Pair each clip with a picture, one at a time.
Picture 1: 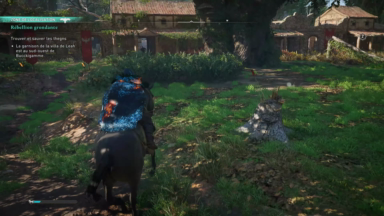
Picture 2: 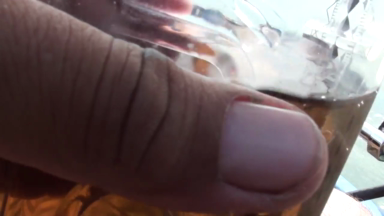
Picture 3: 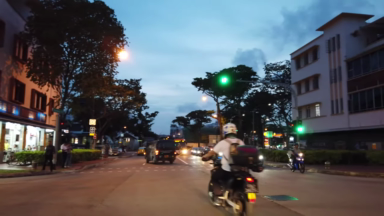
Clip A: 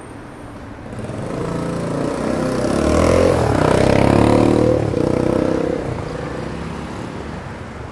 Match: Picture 3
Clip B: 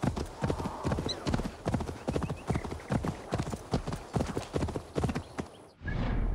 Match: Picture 1